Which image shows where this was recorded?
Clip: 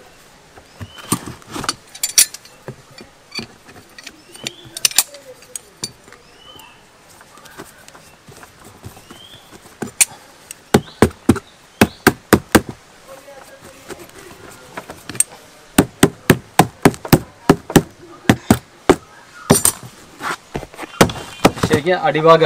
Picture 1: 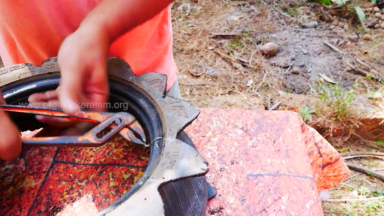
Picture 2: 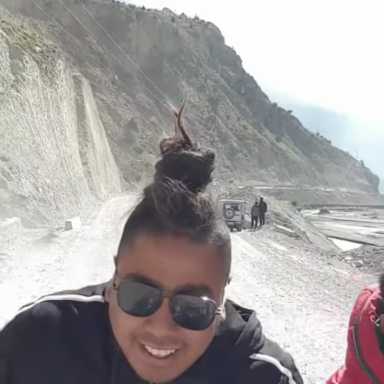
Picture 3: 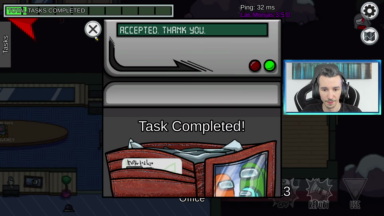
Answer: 1